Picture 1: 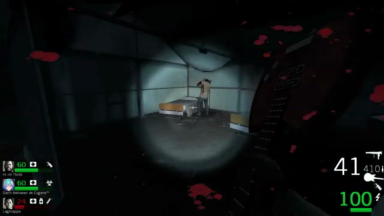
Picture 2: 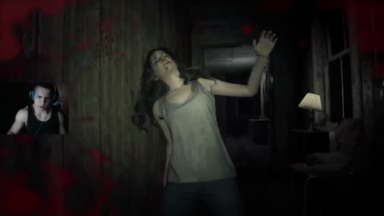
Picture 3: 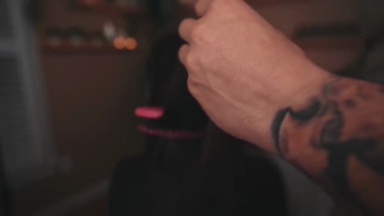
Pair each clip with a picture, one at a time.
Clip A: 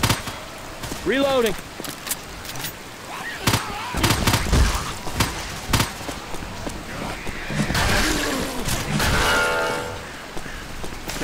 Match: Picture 1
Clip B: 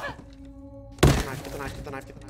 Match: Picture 2